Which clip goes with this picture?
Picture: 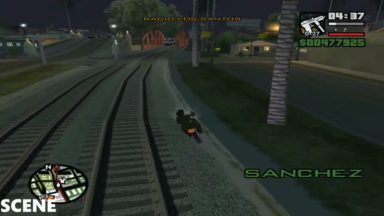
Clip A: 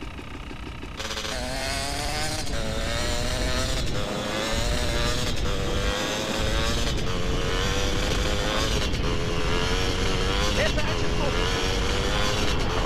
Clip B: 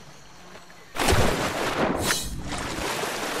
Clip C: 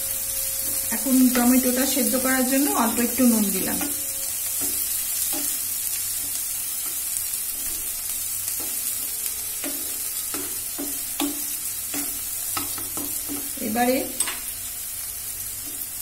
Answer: A